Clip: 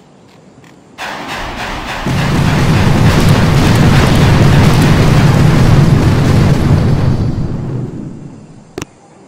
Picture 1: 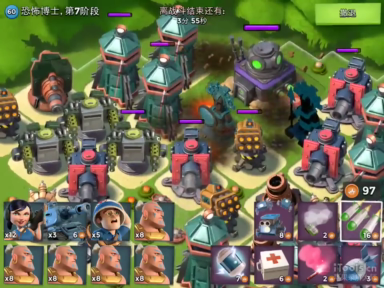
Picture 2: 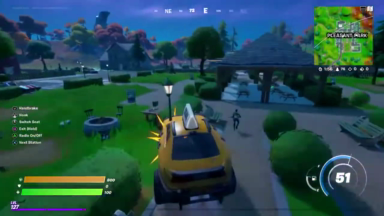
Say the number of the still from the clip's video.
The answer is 1